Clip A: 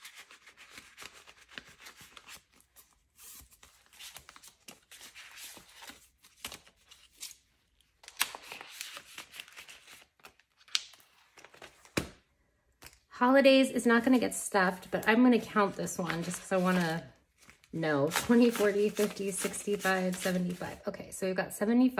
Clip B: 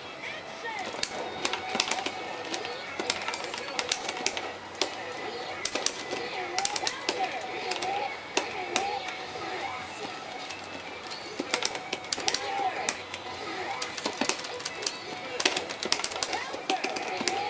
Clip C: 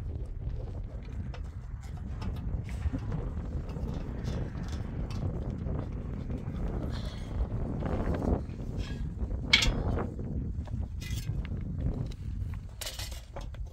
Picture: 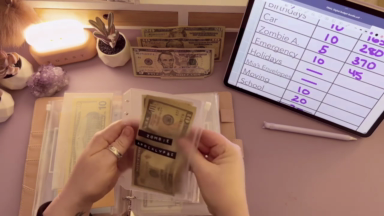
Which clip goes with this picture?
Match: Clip A